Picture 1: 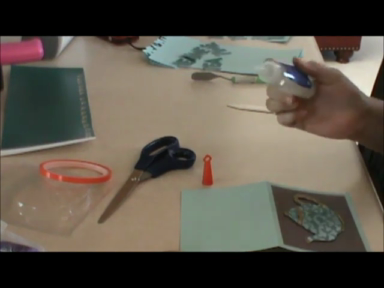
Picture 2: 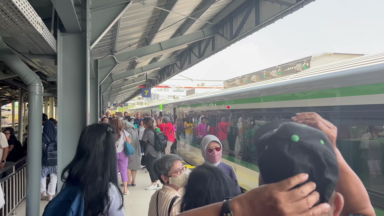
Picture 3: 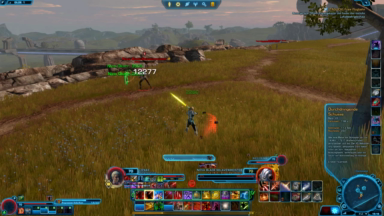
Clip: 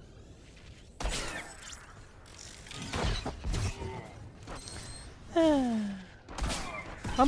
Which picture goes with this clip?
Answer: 3